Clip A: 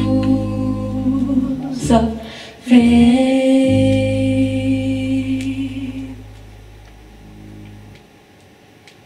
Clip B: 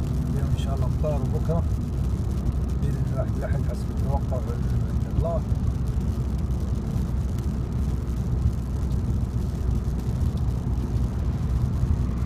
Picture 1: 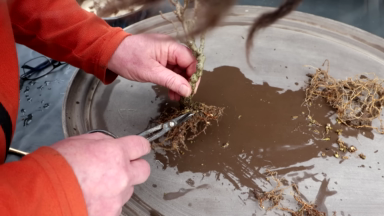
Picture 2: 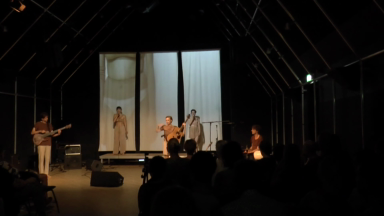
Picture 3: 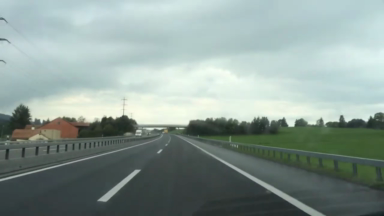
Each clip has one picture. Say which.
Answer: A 2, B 3